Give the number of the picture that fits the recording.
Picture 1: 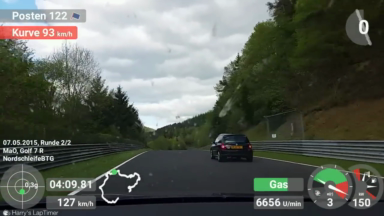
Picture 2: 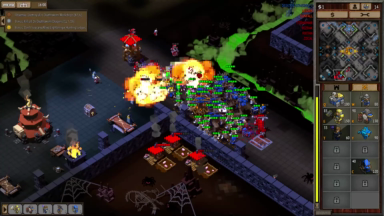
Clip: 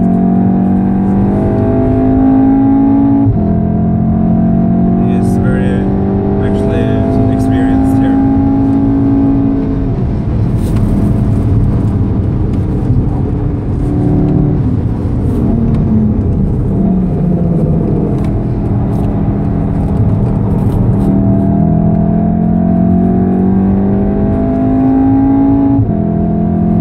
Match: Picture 1